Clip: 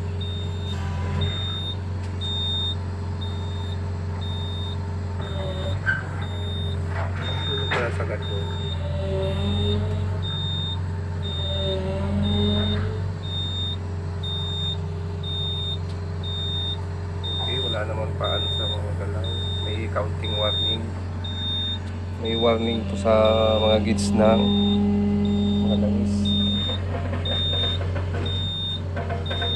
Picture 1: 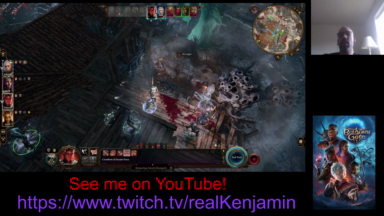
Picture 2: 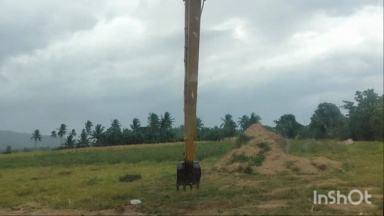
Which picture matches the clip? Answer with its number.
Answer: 2